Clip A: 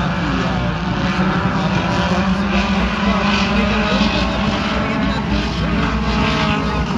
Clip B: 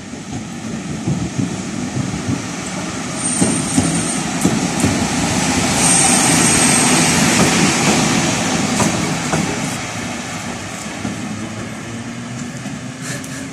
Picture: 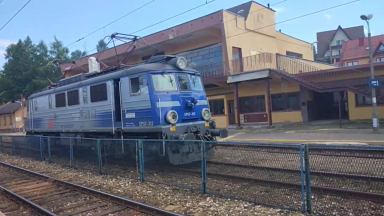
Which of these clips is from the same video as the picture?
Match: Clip B